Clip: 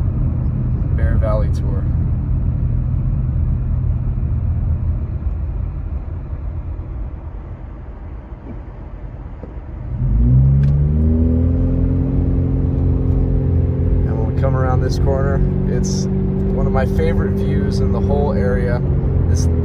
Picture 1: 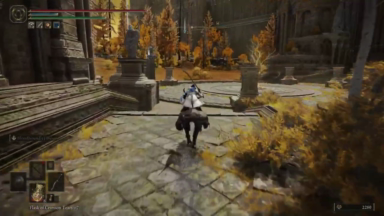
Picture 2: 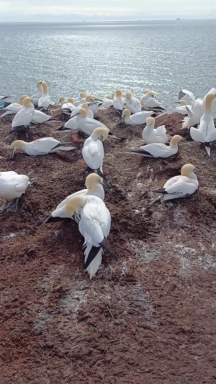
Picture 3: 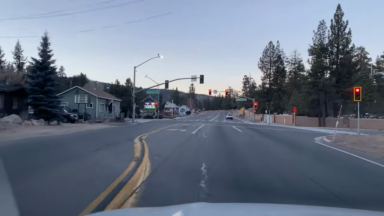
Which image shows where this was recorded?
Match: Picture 3